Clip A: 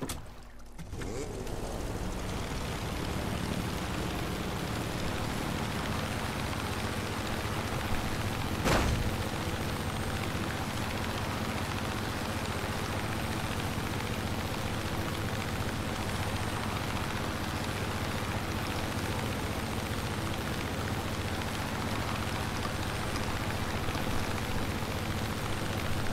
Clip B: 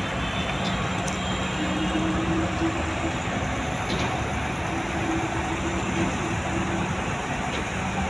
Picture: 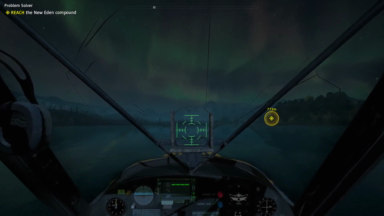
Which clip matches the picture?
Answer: A